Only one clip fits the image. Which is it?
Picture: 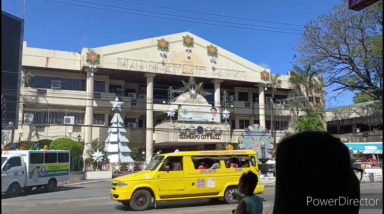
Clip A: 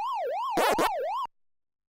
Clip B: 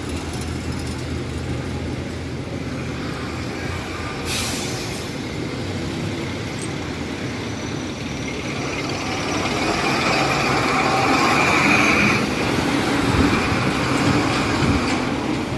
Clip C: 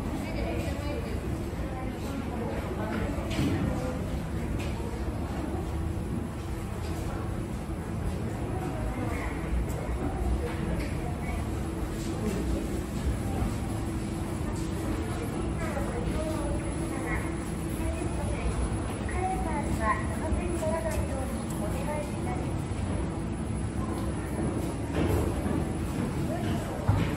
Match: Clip B